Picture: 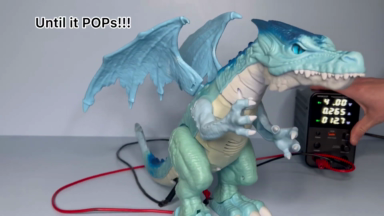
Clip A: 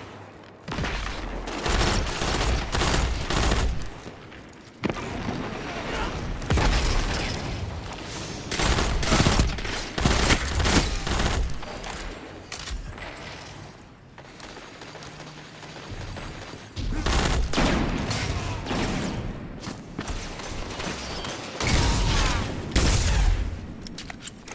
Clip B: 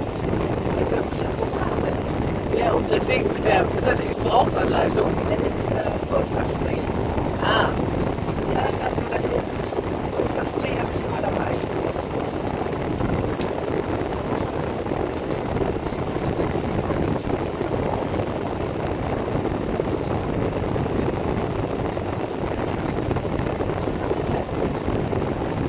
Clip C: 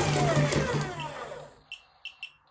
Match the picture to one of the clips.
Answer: C